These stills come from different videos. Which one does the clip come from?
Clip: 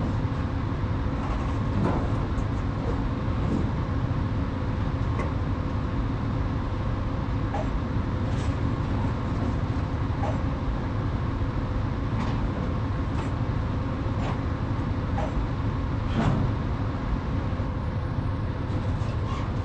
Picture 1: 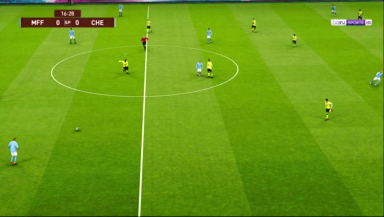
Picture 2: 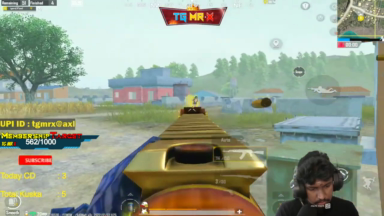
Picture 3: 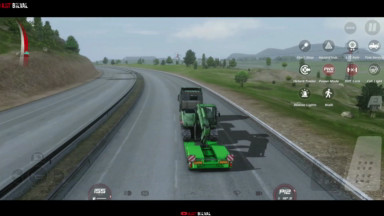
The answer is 3